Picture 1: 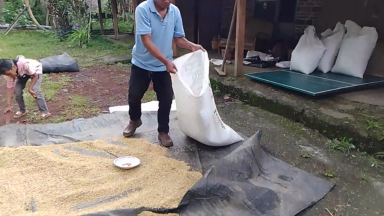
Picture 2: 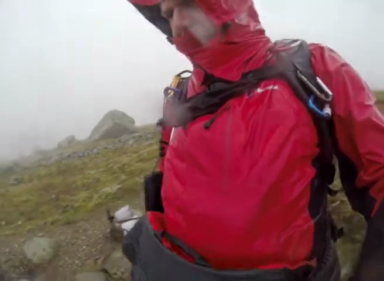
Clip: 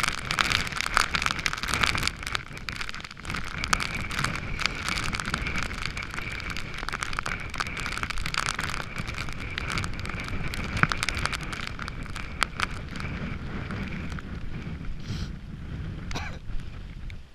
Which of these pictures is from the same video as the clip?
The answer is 2